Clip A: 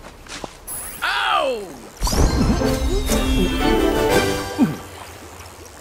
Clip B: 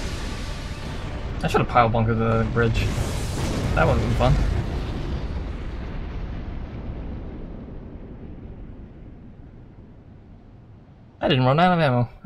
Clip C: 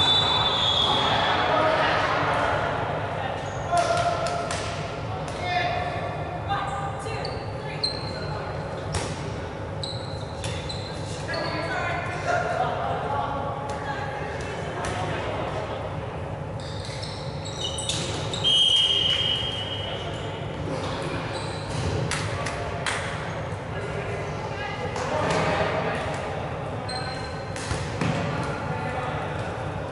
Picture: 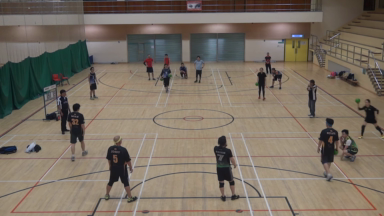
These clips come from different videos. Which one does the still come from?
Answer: C